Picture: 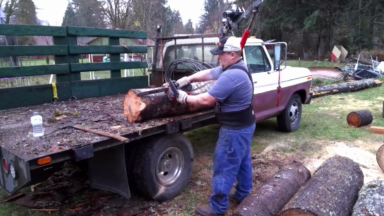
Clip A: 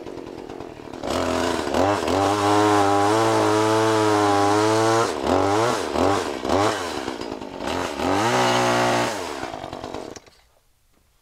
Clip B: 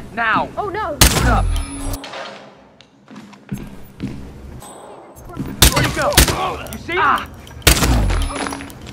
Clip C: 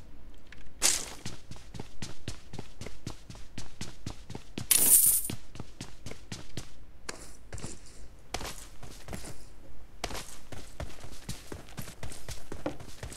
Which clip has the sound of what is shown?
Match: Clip A